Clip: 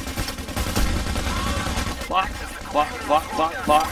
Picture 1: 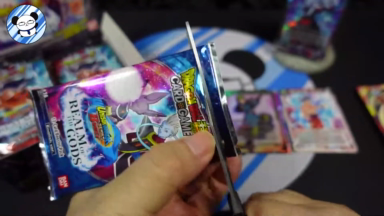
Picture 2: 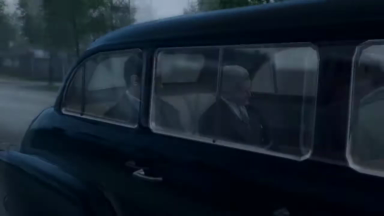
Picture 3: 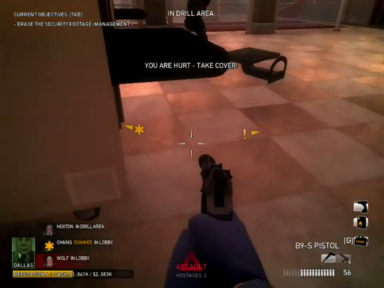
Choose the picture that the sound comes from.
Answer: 3